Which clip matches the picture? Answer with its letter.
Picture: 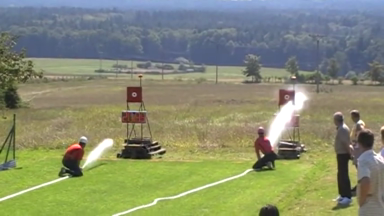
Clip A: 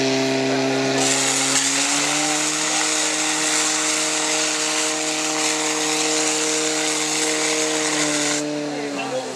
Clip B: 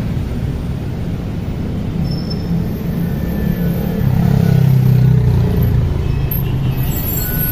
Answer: A